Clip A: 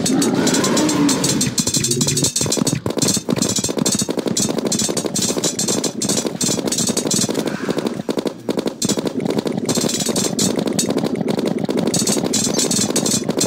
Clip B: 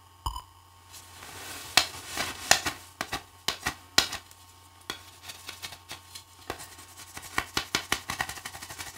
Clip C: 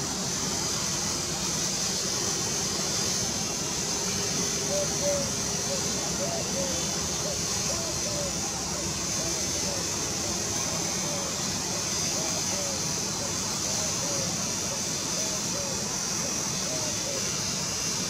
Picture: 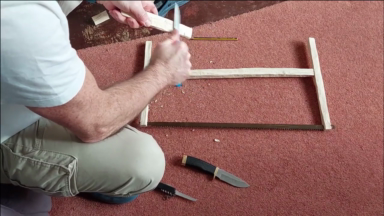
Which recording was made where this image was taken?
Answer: B